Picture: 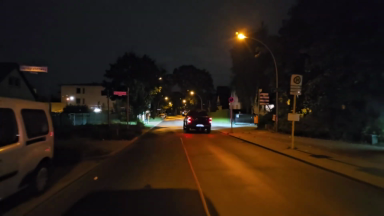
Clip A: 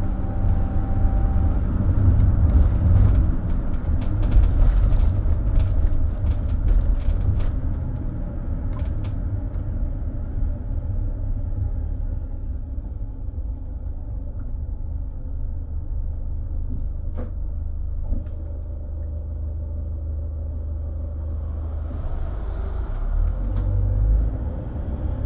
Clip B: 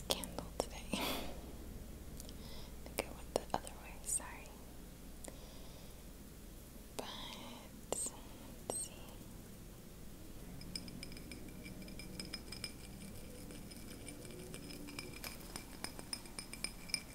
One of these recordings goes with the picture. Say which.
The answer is A